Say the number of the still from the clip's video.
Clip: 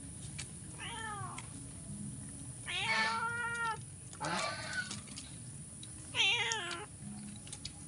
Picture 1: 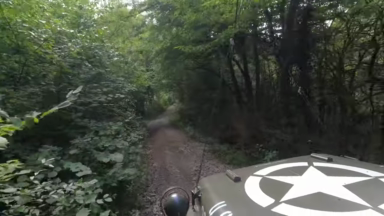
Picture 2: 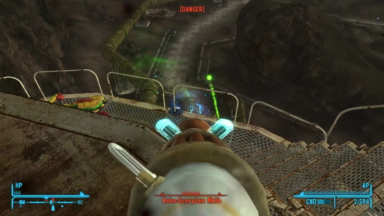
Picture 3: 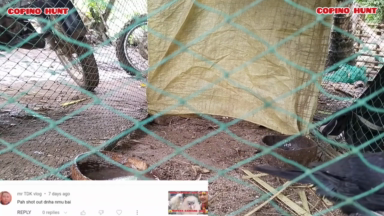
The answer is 3